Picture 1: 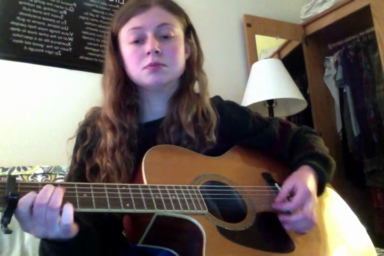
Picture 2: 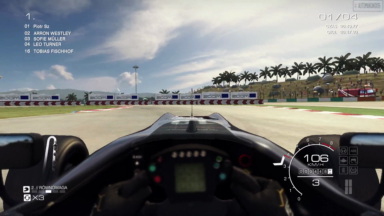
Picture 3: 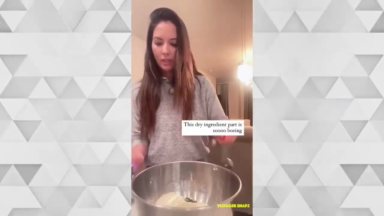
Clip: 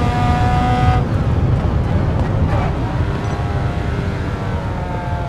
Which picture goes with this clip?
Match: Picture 2